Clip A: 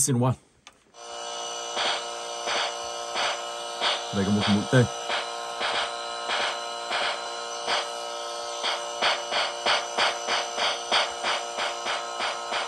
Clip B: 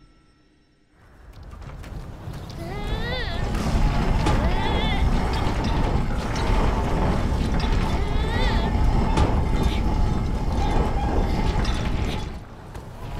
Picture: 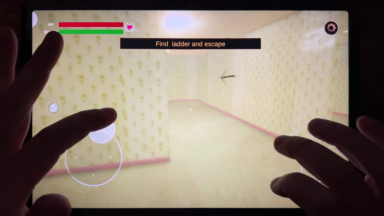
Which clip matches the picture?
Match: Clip A